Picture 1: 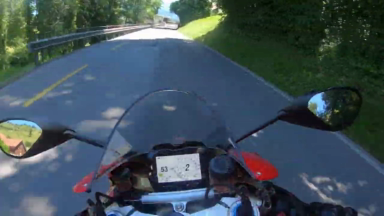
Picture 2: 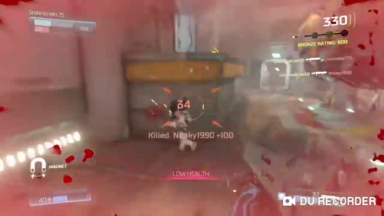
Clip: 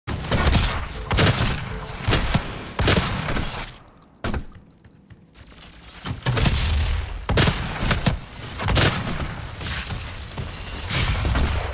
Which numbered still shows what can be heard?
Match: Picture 2